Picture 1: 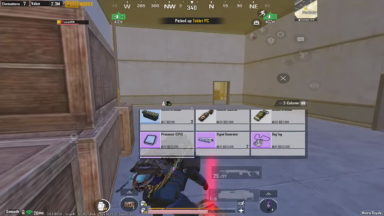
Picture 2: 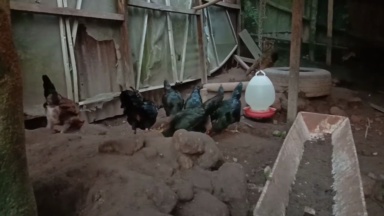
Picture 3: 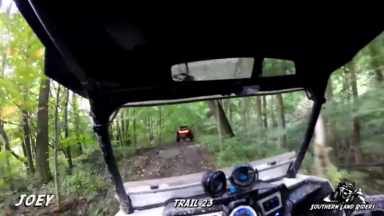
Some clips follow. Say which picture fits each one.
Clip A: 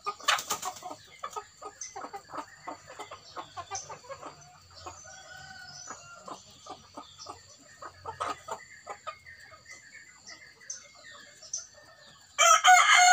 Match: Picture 2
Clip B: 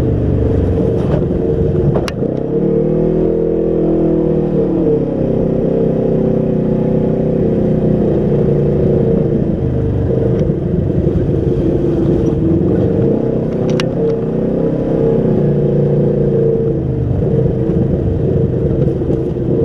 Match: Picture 3